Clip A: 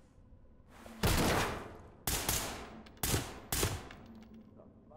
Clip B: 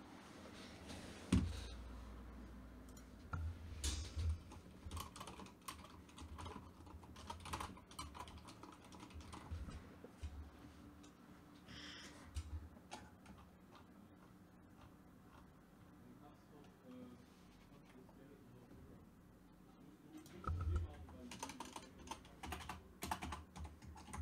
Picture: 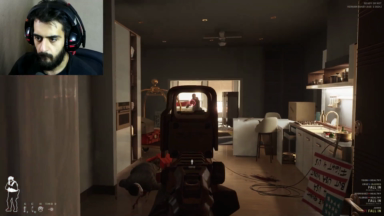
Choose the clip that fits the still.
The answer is A